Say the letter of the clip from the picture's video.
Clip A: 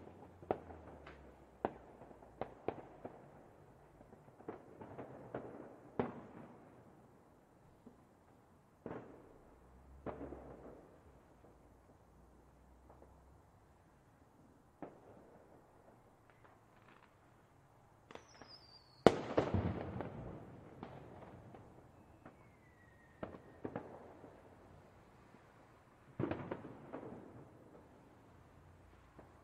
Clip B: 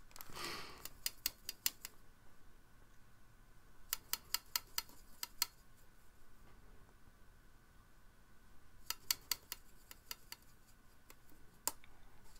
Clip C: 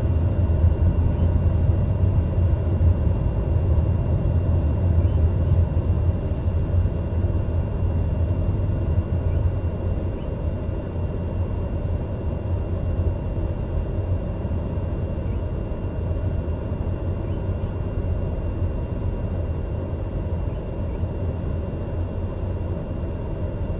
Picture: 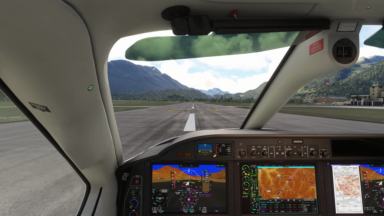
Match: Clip C